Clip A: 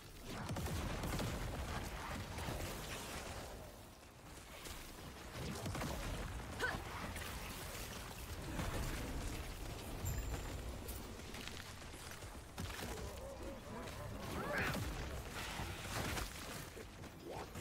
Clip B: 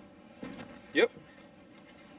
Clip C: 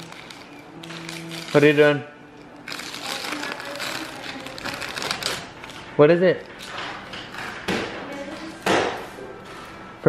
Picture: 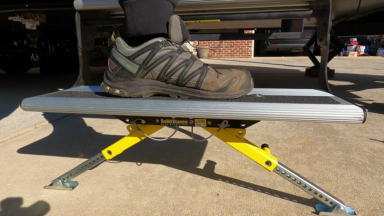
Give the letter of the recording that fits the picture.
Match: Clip B